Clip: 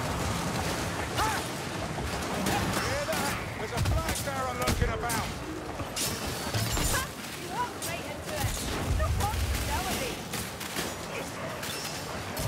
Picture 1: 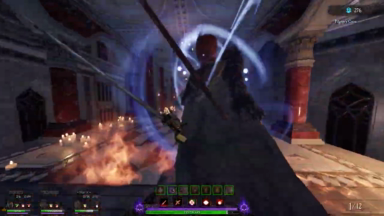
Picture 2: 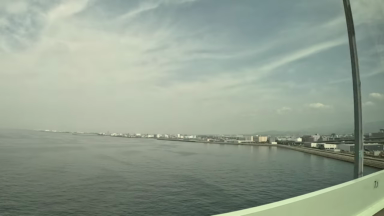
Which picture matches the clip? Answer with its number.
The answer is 1